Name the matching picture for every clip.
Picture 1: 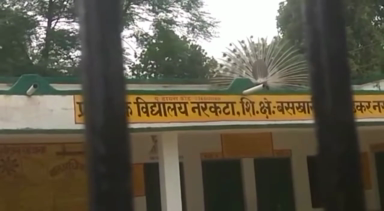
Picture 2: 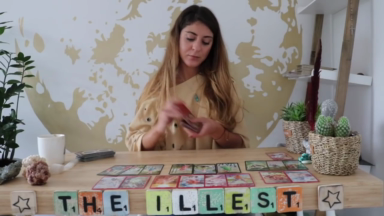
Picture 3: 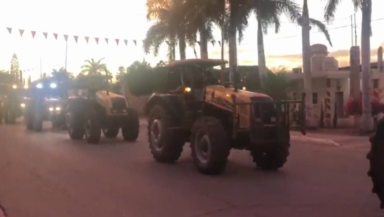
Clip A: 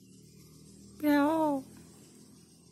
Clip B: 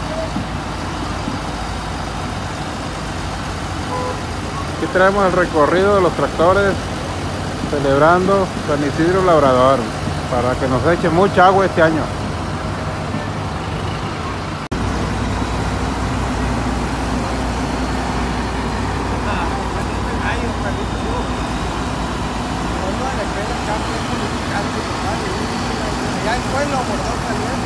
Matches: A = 1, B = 3